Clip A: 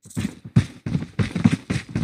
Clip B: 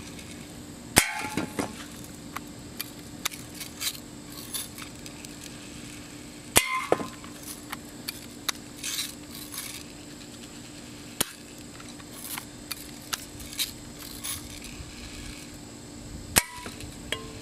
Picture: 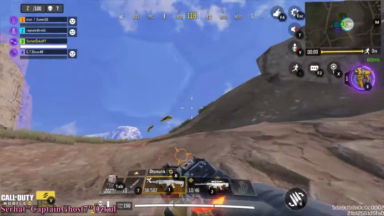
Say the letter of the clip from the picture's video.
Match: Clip A